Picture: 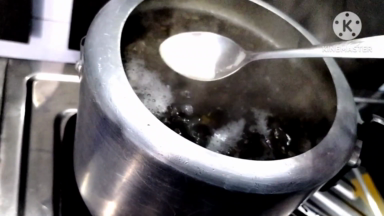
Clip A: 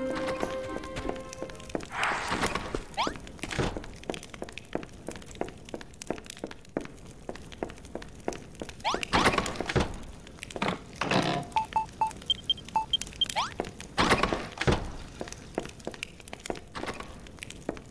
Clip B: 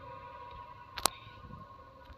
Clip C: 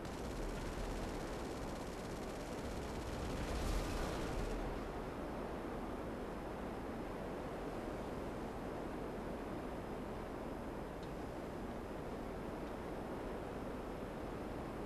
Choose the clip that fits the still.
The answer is B